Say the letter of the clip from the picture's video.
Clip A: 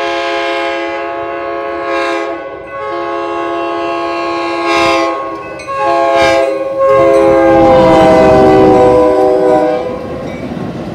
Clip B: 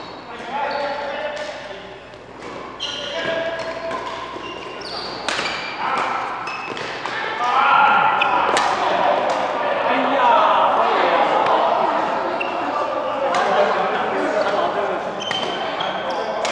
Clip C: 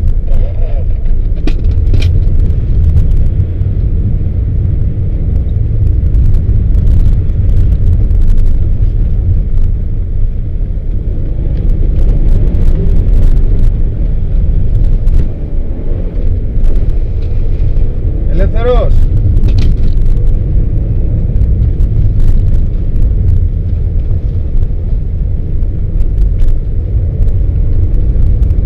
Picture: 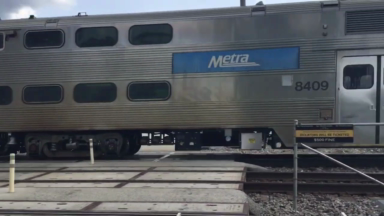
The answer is A